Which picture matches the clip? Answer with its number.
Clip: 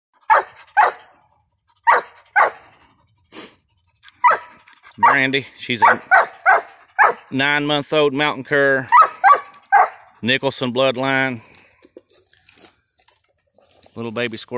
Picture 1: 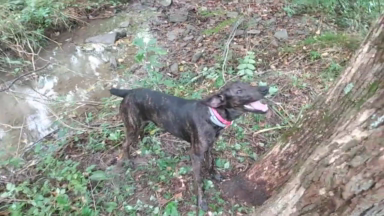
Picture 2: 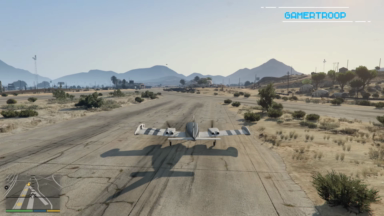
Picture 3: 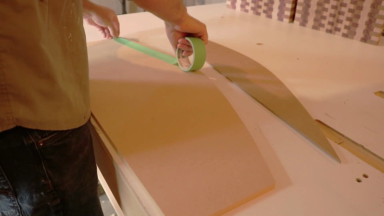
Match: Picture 1